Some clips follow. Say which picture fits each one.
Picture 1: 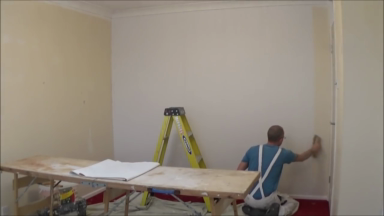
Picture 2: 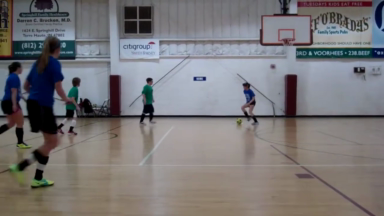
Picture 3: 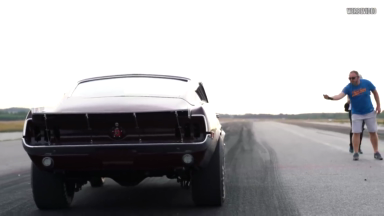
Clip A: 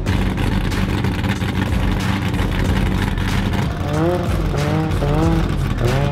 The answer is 3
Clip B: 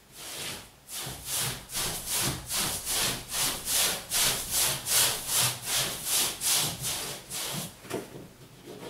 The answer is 1